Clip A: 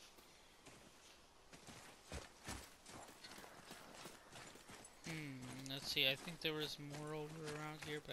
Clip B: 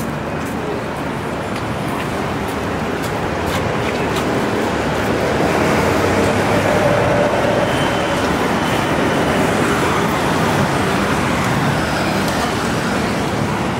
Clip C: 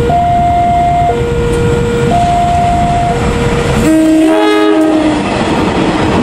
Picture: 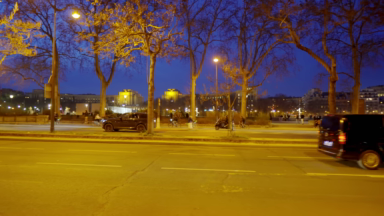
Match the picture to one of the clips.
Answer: B